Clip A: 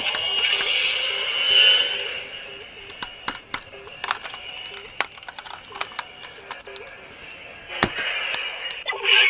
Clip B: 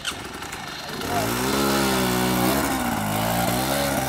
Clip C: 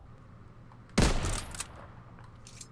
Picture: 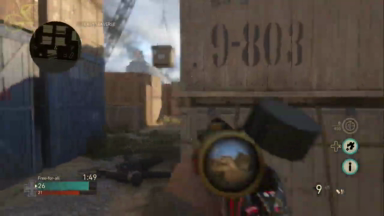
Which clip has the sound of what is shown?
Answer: C